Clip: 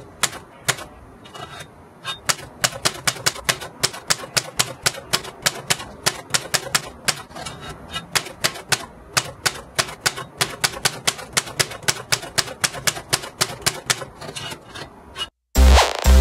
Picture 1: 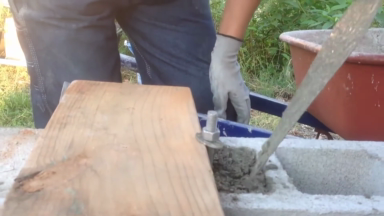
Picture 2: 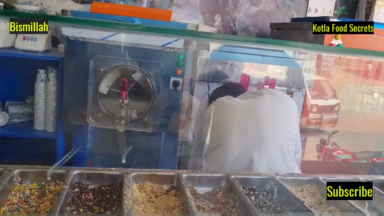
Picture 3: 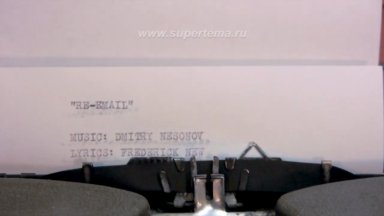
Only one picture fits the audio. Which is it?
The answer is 3